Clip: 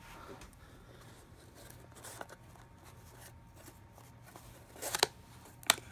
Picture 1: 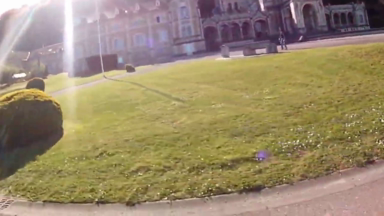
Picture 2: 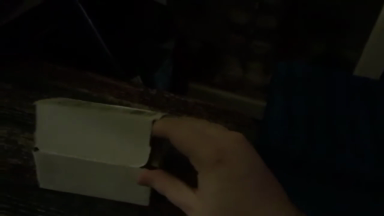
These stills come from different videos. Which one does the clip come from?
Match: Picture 2